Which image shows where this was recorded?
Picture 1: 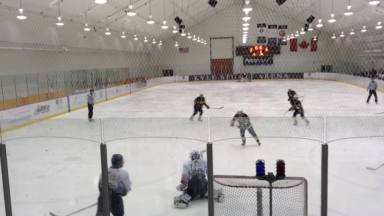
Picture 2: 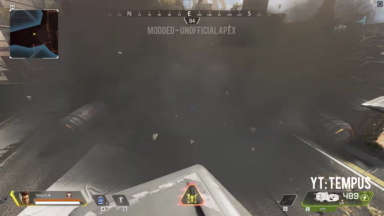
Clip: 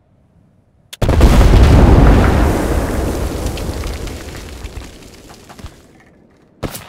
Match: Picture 2